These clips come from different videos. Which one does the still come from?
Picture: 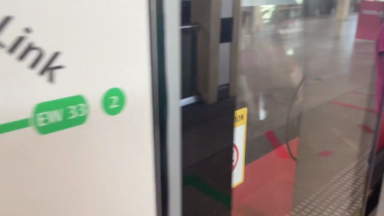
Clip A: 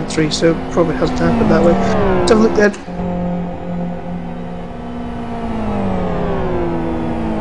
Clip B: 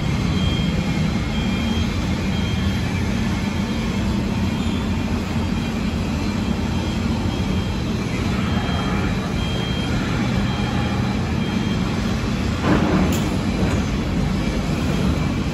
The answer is B